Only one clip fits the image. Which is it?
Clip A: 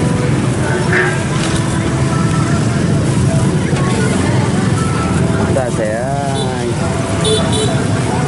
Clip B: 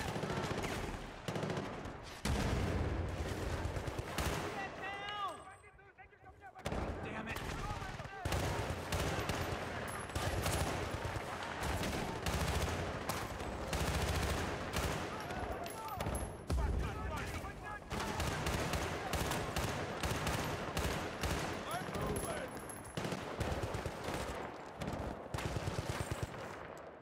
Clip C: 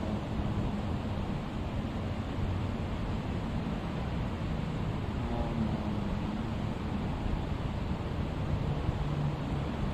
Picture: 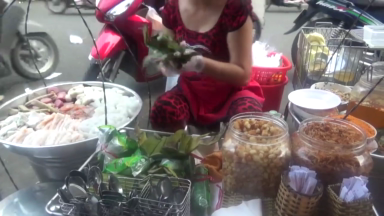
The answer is A